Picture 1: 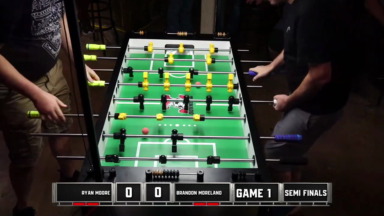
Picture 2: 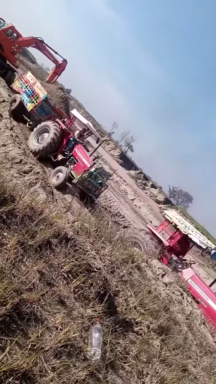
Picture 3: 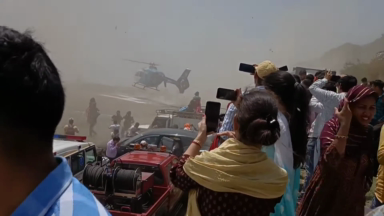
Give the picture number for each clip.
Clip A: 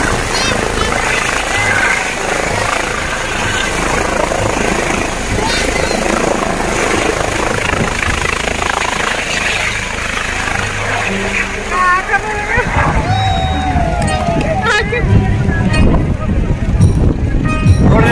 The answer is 3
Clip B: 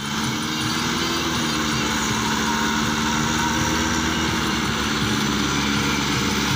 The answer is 2